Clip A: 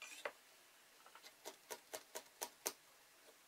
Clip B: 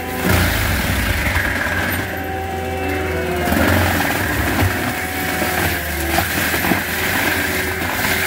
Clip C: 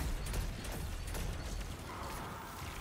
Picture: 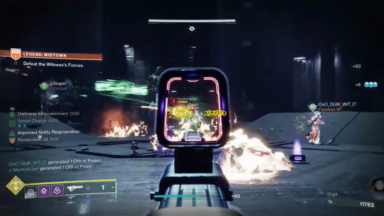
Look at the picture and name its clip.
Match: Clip C